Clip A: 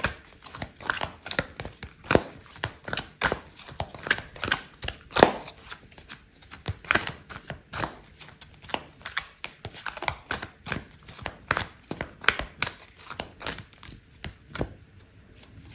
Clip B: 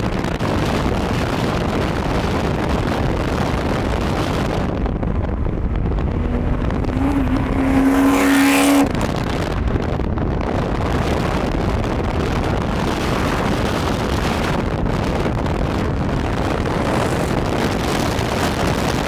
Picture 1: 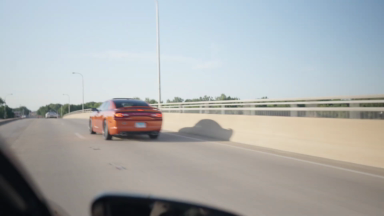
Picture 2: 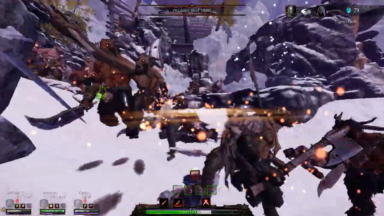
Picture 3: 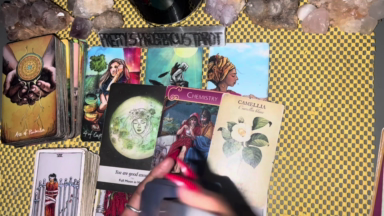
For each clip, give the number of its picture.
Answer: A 3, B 1